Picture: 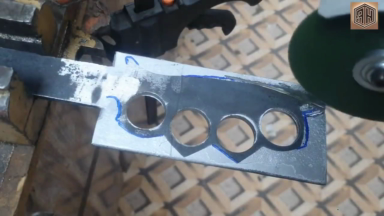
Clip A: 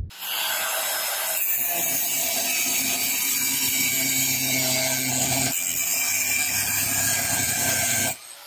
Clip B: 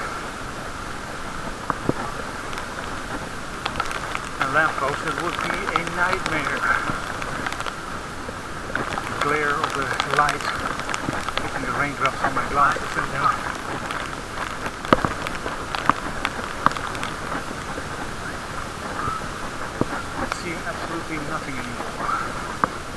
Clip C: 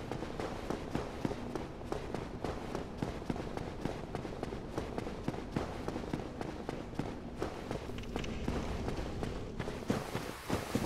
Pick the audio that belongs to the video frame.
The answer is A